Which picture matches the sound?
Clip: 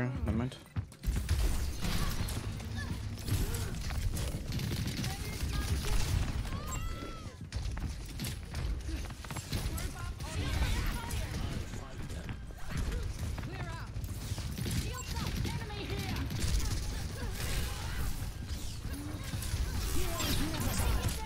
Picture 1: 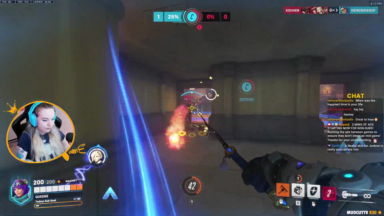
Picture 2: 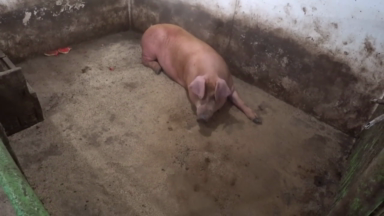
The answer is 1